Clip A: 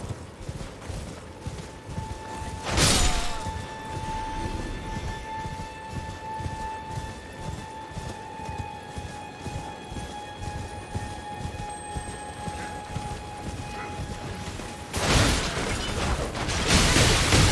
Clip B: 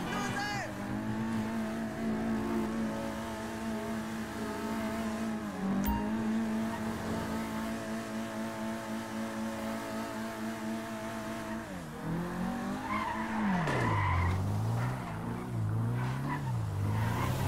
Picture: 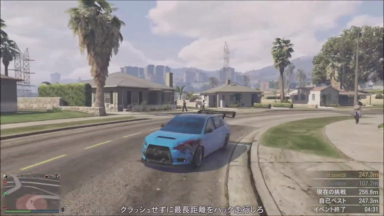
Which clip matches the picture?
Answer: B